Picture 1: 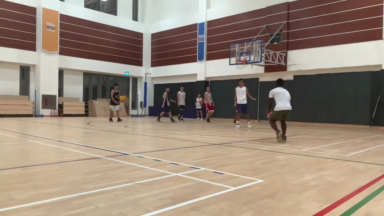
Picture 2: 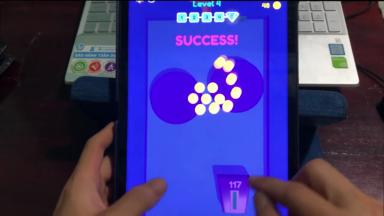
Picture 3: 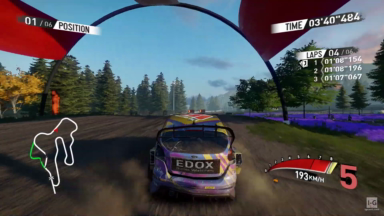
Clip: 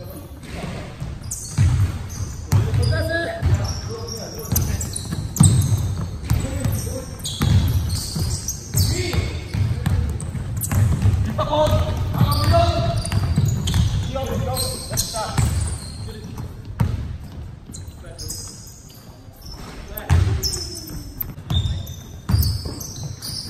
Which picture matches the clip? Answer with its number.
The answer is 1